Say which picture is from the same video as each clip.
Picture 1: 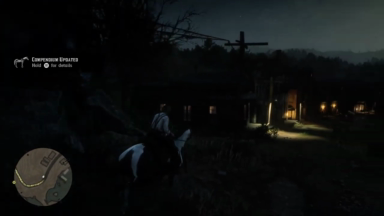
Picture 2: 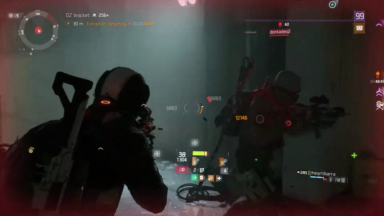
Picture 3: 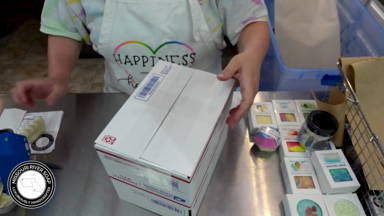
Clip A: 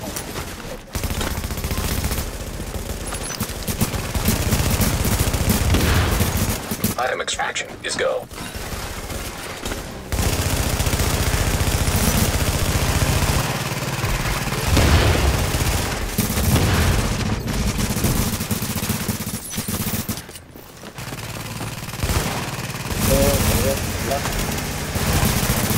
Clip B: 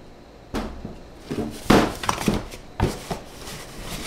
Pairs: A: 2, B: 3